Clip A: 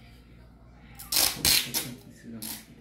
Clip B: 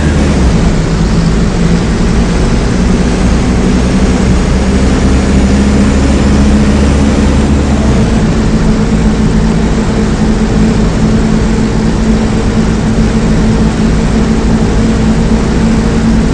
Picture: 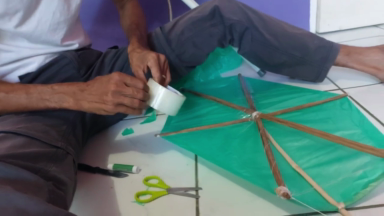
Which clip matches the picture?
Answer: A